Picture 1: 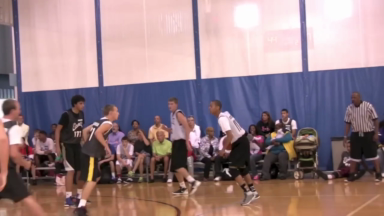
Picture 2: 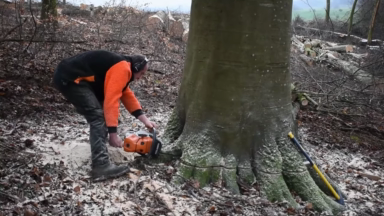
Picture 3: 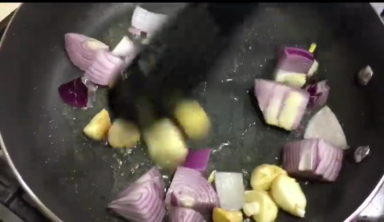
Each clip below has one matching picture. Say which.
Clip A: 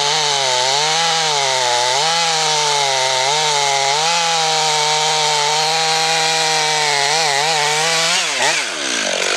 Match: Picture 2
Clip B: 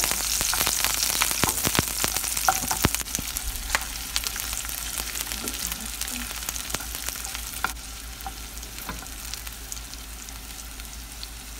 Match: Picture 3